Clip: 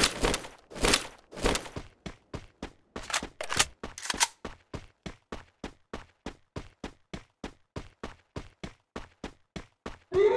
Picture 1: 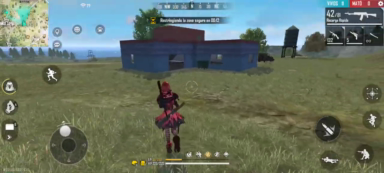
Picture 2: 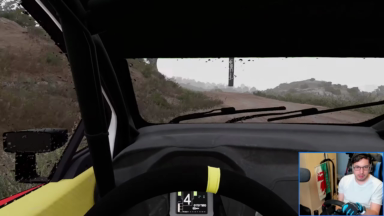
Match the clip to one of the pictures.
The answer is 1